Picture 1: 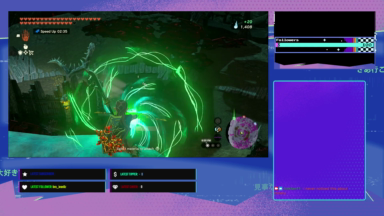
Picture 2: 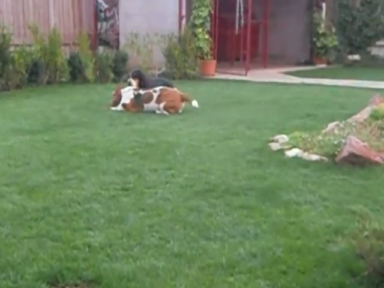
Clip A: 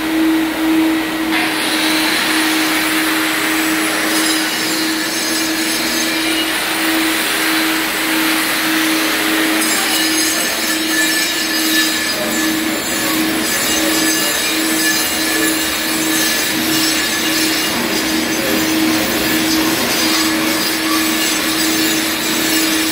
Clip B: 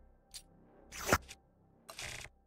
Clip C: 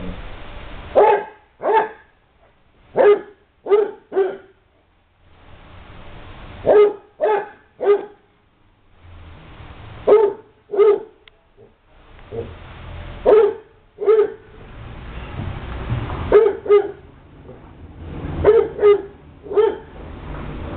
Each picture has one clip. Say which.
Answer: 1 B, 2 C